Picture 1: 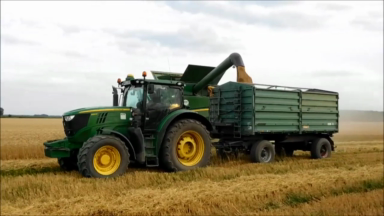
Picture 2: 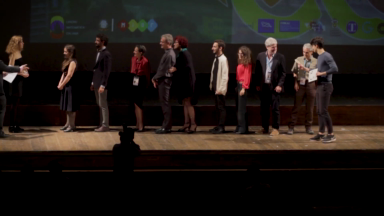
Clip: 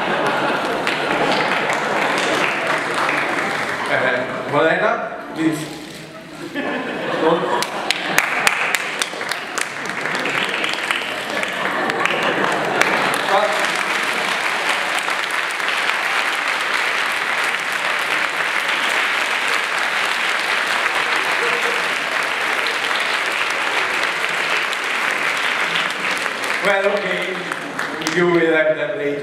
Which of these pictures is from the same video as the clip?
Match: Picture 2